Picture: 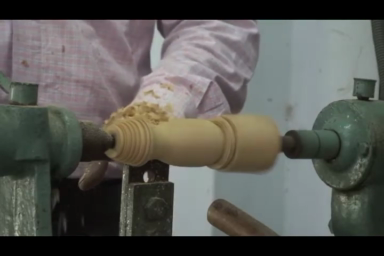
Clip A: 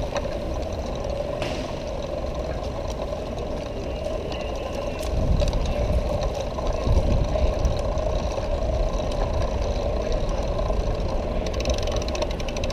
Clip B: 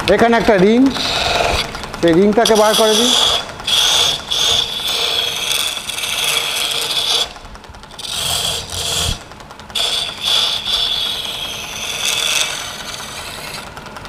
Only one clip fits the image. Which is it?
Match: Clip B